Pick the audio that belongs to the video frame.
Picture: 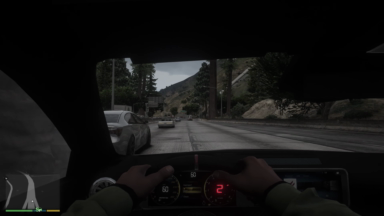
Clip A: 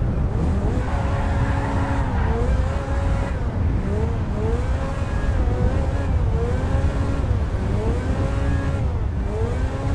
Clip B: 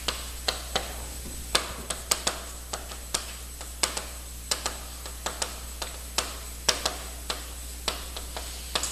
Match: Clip A